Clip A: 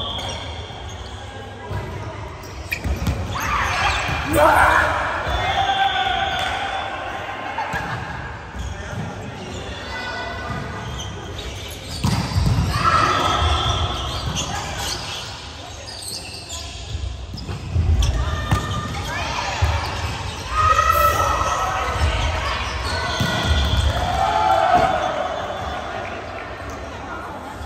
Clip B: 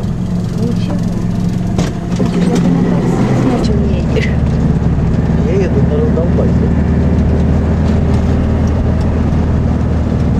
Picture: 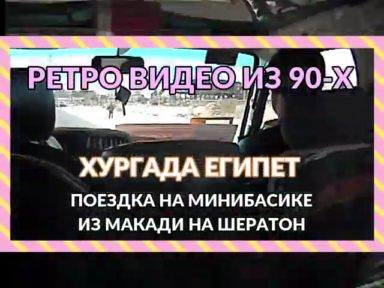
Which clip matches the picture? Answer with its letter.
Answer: B